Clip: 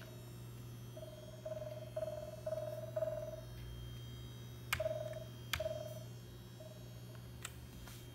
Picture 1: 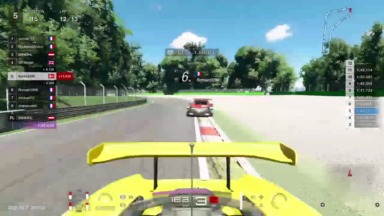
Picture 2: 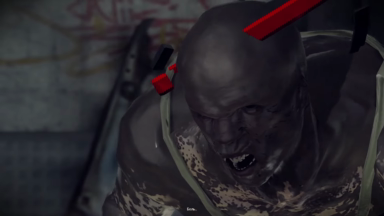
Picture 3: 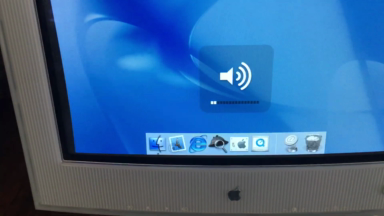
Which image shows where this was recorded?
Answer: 3